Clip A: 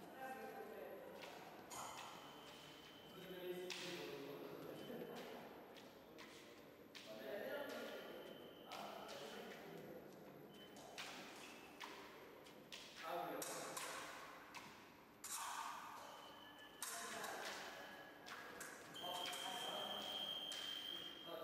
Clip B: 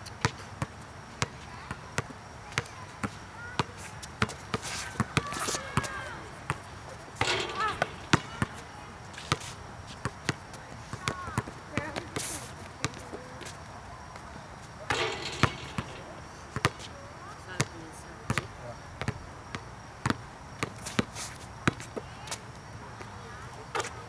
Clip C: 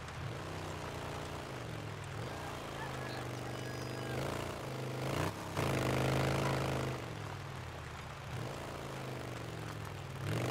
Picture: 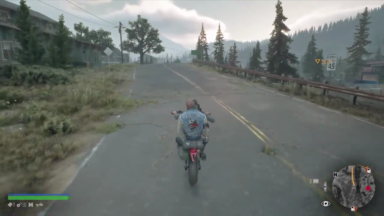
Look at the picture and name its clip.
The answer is C